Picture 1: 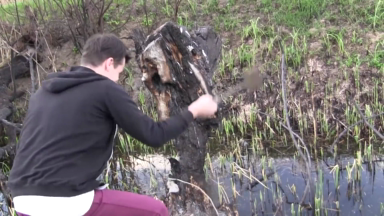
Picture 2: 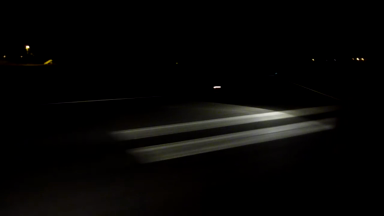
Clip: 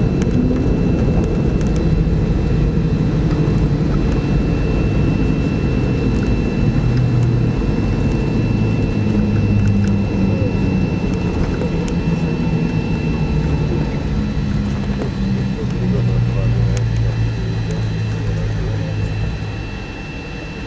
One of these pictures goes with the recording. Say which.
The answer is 2